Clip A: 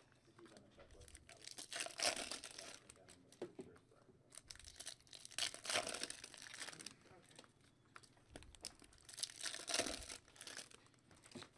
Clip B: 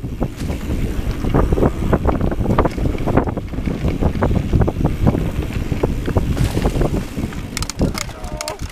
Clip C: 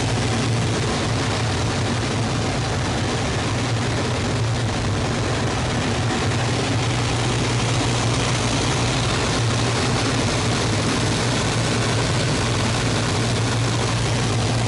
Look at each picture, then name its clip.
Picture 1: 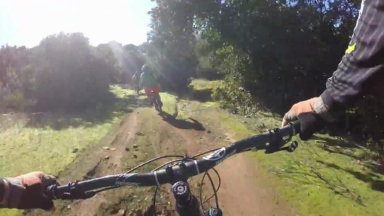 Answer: B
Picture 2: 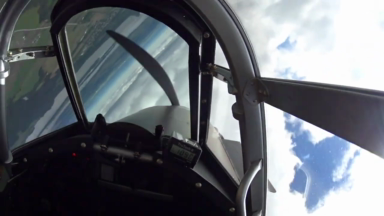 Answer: C